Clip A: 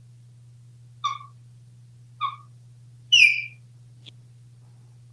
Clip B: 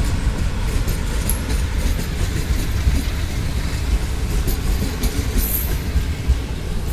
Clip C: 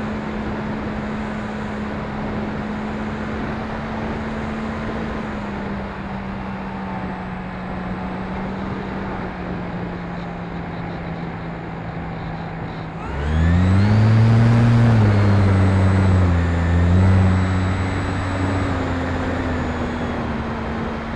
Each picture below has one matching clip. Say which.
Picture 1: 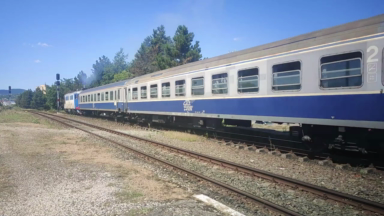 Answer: B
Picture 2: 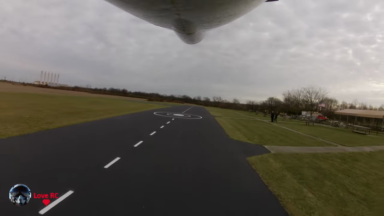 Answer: C